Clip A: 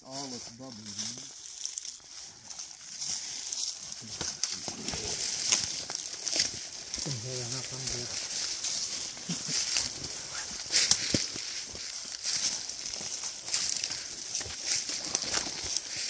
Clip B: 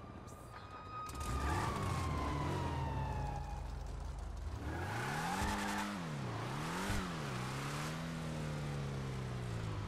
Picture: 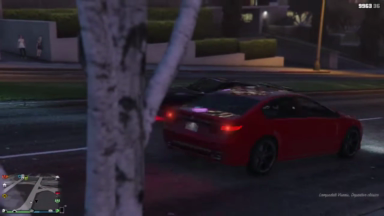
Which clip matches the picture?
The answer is B